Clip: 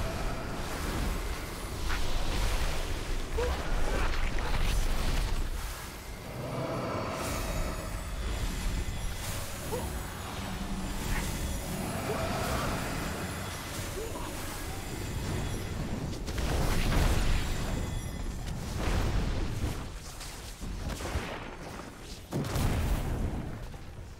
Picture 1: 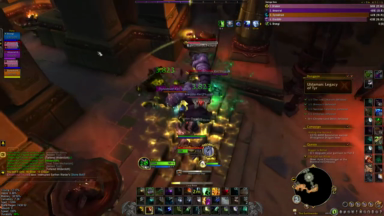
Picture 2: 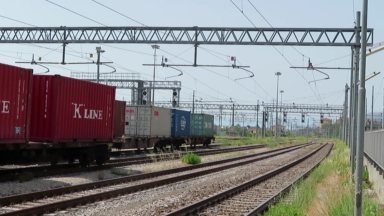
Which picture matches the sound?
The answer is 1